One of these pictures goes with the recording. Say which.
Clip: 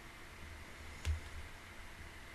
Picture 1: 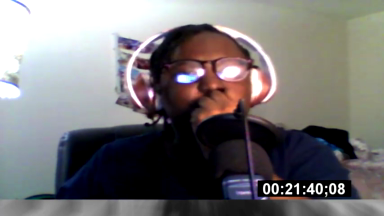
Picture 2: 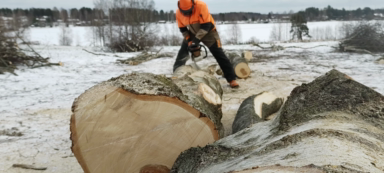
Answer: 1